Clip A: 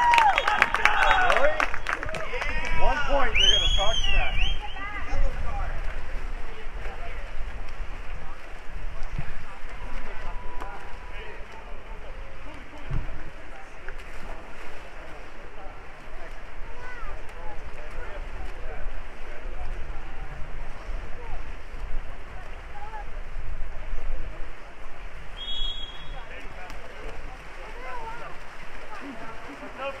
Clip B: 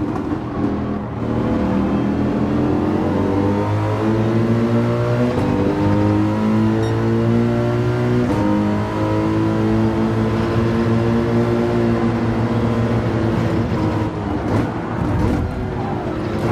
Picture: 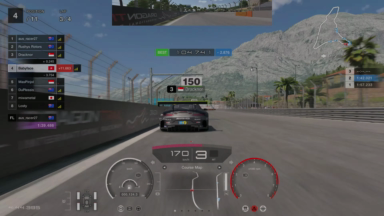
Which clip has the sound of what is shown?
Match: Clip B